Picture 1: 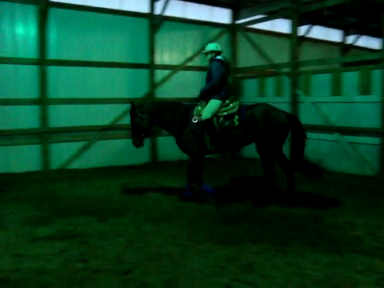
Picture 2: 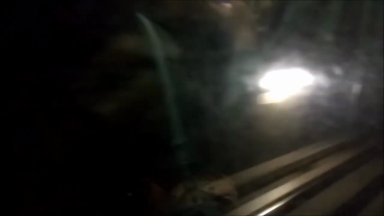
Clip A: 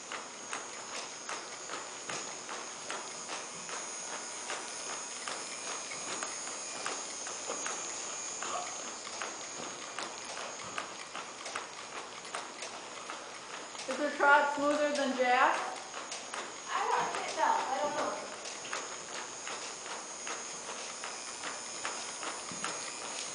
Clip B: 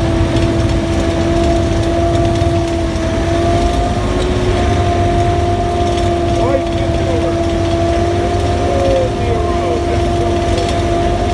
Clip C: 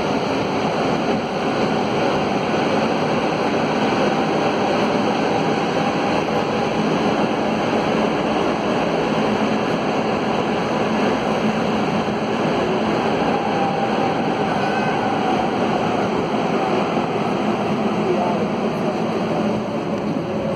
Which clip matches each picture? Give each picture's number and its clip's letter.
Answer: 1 A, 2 C